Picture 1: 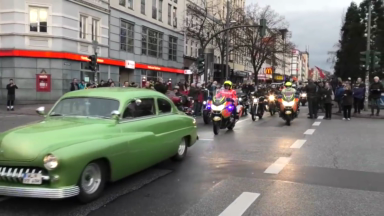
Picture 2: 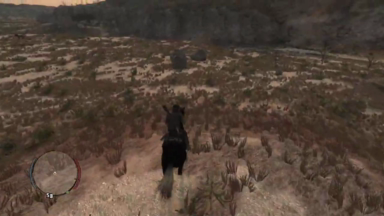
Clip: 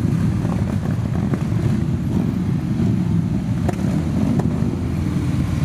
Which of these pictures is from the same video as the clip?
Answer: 1